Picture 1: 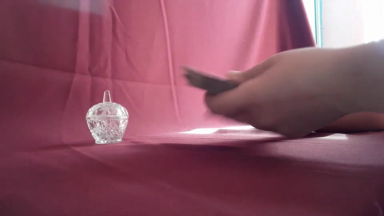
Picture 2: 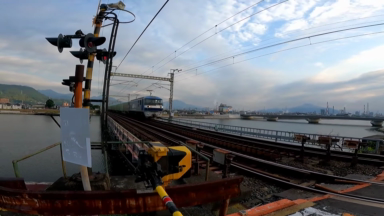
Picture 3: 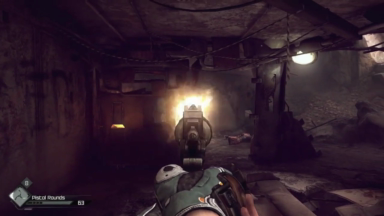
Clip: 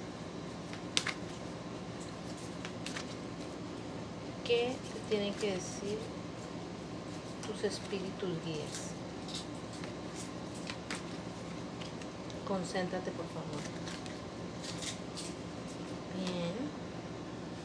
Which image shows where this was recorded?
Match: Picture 1